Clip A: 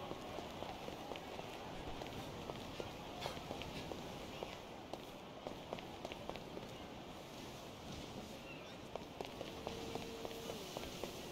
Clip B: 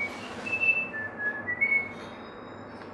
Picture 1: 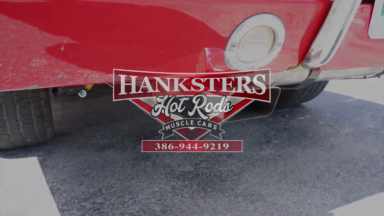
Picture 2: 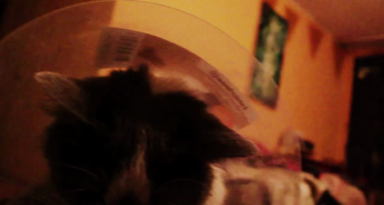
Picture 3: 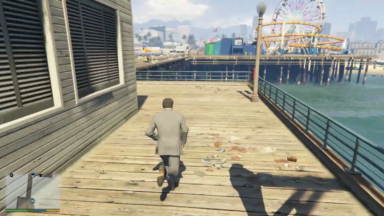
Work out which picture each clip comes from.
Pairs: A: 3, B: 2